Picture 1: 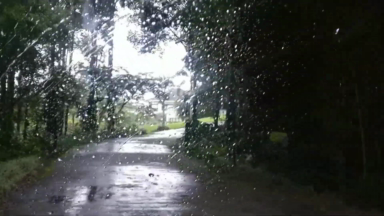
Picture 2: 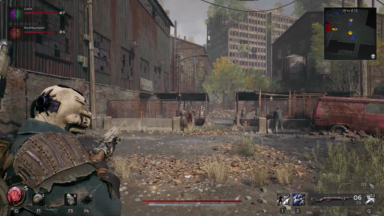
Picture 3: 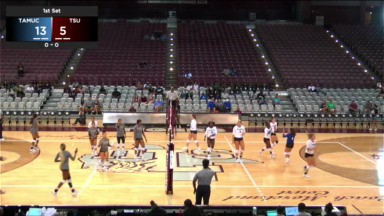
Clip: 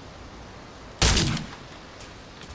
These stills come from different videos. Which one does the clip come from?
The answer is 2